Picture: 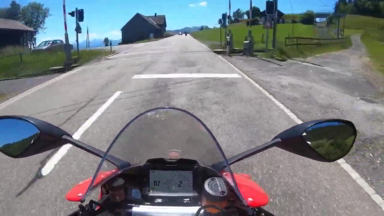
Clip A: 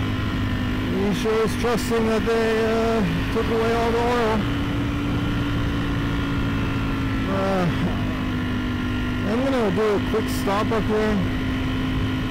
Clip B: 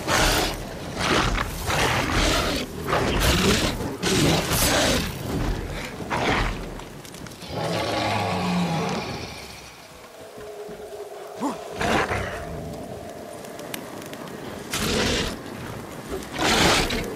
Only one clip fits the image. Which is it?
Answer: A